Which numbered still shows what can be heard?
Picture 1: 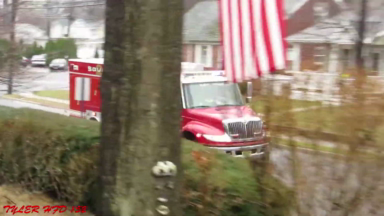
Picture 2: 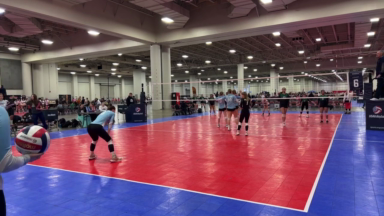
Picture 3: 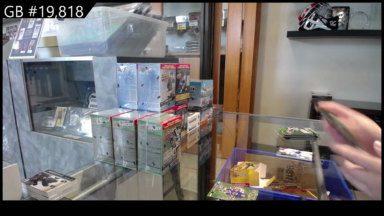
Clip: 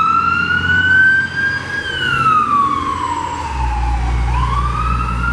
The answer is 1